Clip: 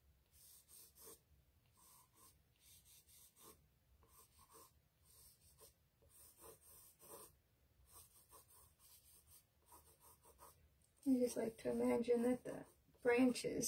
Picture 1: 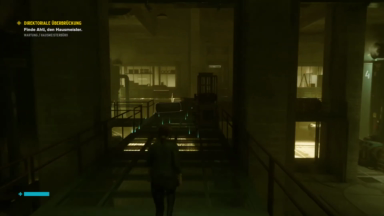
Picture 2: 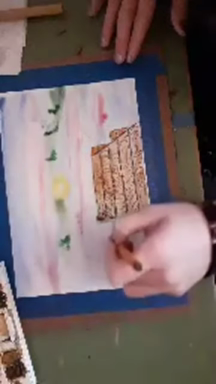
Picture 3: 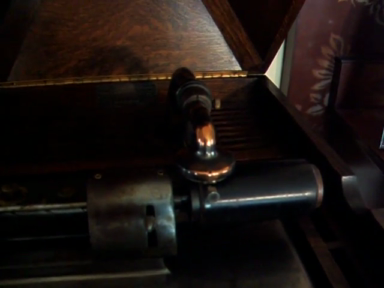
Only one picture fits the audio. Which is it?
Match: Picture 2